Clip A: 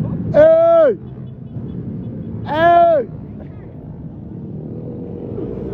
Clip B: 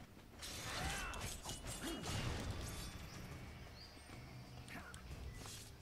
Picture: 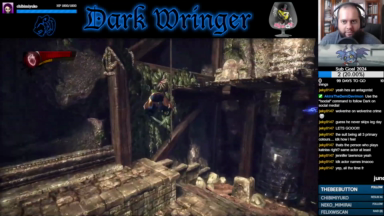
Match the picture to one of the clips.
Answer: B